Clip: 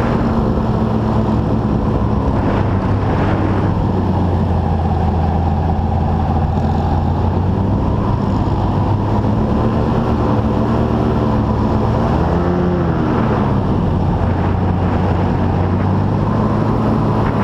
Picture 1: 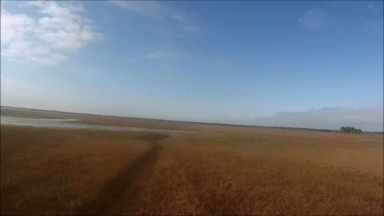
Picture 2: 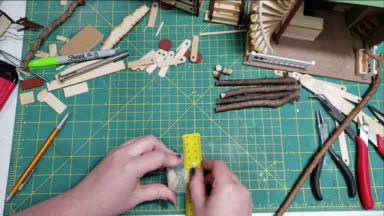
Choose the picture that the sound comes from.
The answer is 1